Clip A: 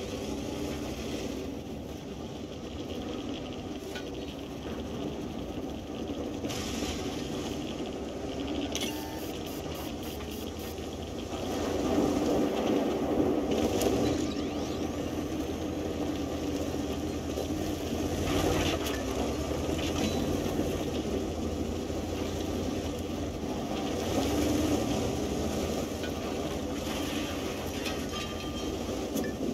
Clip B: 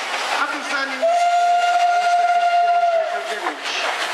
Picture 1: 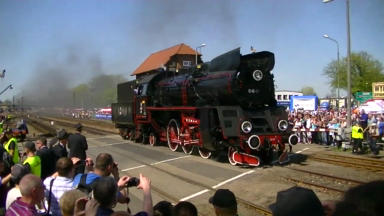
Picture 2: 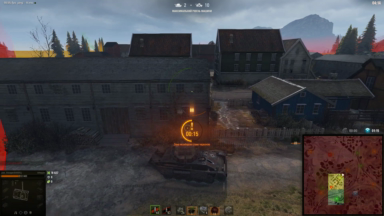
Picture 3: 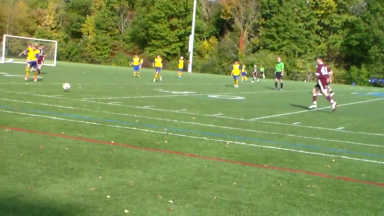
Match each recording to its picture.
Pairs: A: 2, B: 1